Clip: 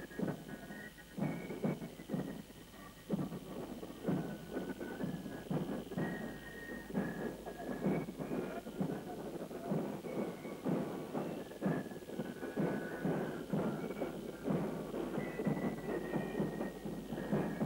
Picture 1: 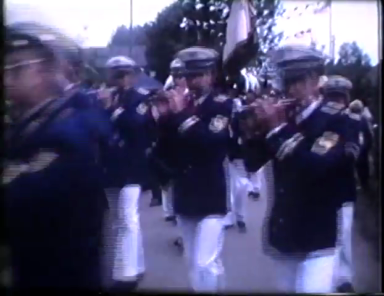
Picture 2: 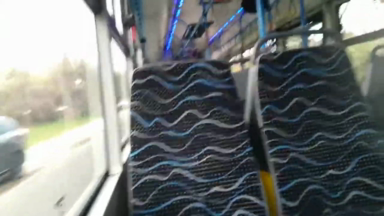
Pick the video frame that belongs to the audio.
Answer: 1